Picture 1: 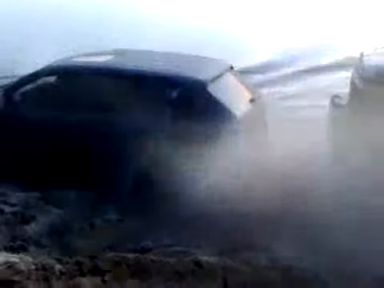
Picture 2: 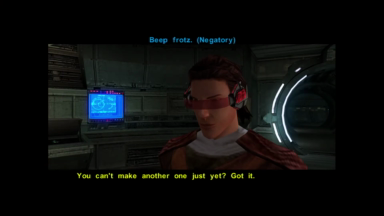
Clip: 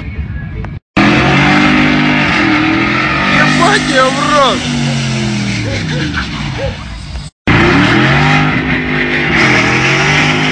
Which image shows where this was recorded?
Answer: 1